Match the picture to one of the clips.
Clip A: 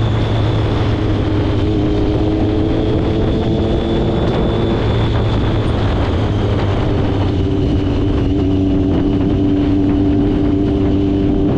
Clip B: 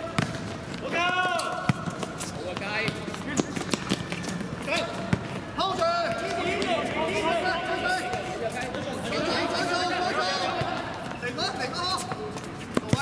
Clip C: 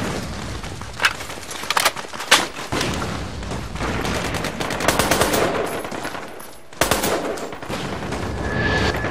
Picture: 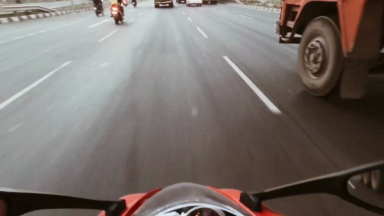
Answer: A